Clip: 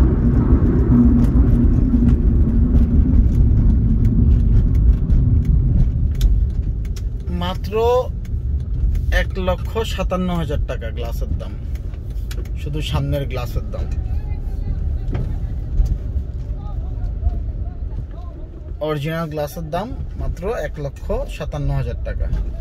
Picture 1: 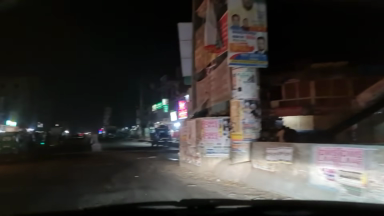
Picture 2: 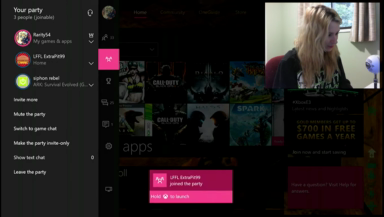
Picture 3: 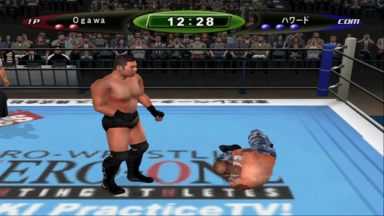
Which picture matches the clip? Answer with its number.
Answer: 1